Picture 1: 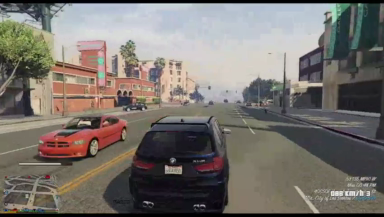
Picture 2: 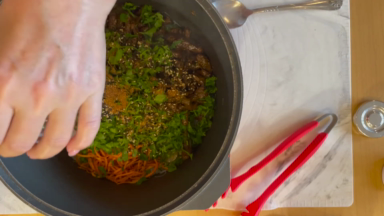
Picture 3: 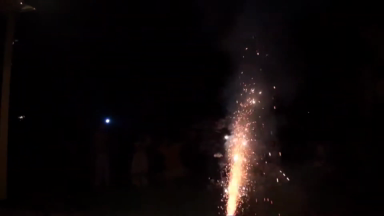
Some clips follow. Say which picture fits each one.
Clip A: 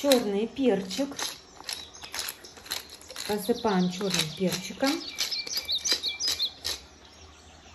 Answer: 2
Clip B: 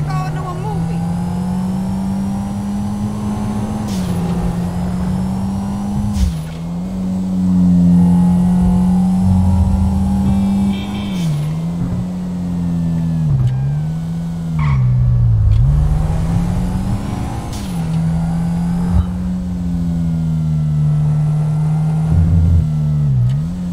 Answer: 1